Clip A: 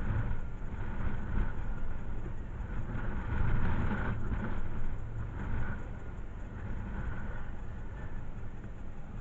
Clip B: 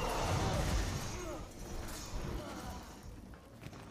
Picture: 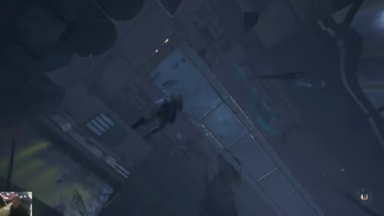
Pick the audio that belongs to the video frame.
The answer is B